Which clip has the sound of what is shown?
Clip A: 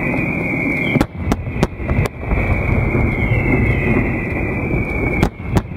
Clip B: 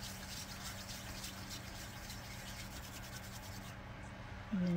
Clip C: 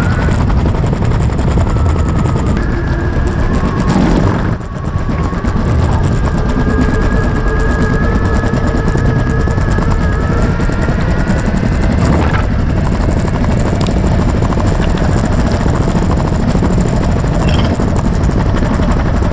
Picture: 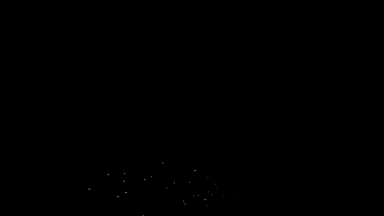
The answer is A